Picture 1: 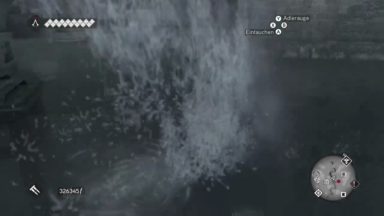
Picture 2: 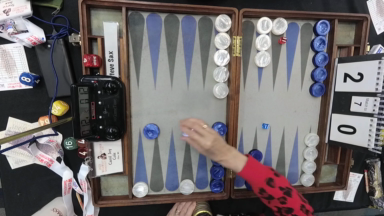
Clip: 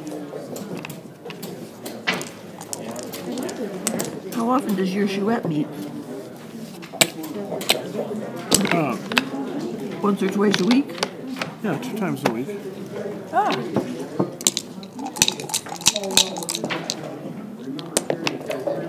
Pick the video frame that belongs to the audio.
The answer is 2